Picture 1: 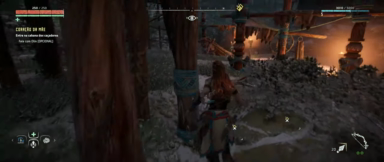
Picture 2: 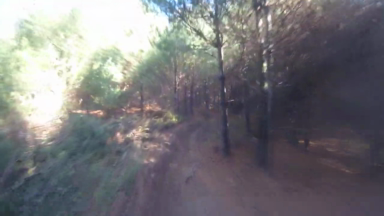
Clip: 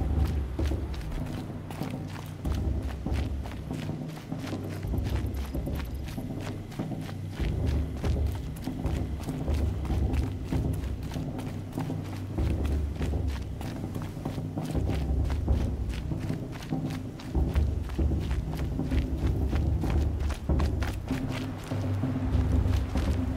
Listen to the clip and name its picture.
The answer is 1